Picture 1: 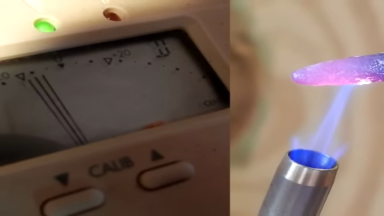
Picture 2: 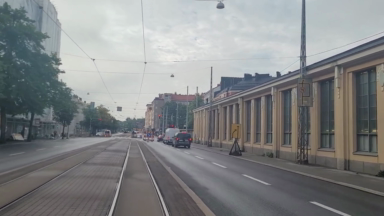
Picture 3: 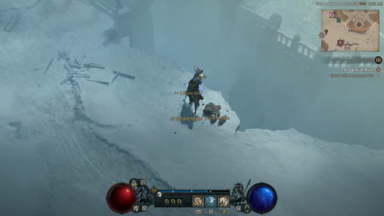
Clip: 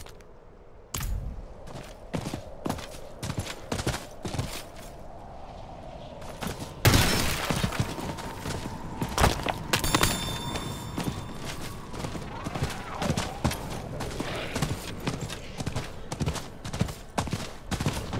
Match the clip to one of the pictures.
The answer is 3